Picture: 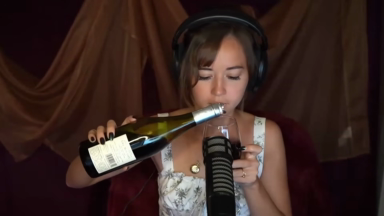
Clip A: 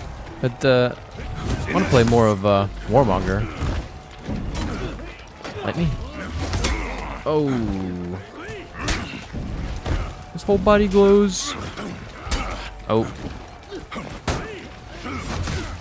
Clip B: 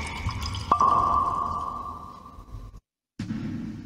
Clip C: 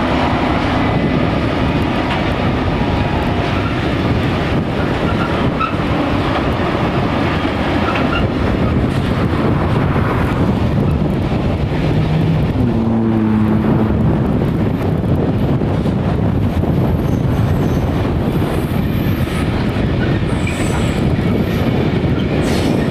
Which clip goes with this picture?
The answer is B